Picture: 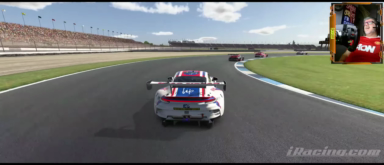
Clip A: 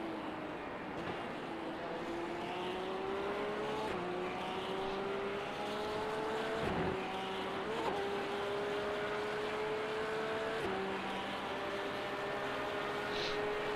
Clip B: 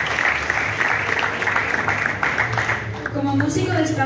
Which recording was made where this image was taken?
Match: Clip A